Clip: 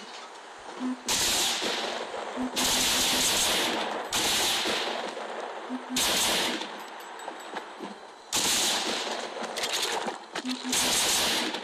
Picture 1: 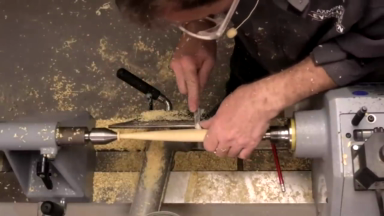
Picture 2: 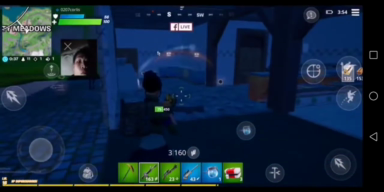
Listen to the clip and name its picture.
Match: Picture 2